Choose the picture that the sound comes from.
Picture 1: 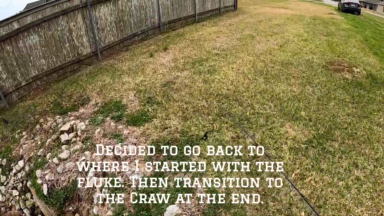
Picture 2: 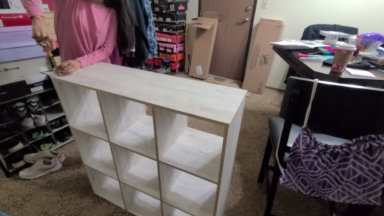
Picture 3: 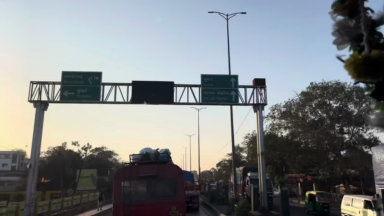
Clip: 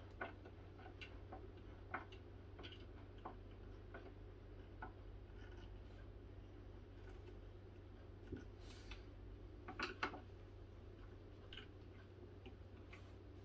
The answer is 2